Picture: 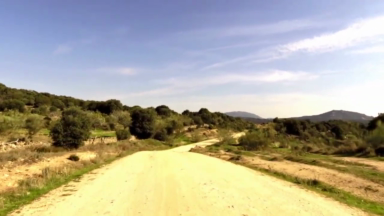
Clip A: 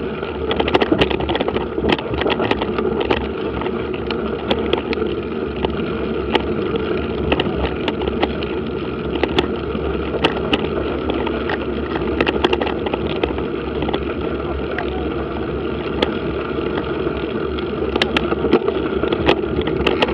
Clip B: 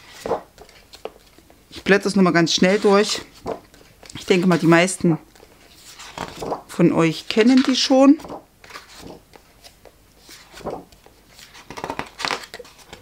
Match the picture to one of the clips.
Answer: A